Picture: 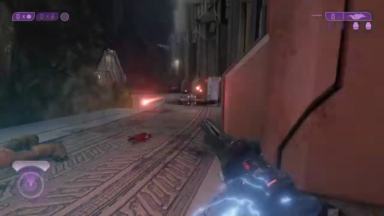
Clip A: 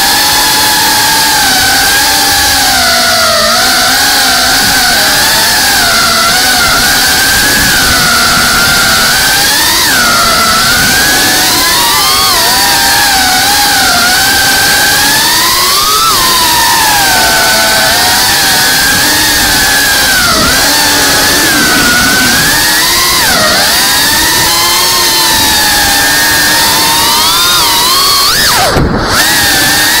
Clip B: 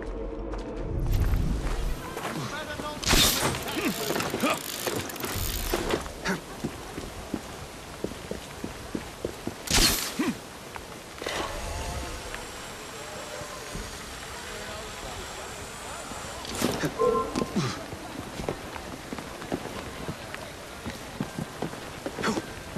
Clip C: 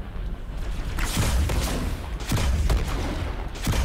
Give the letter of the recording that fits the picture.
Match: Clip C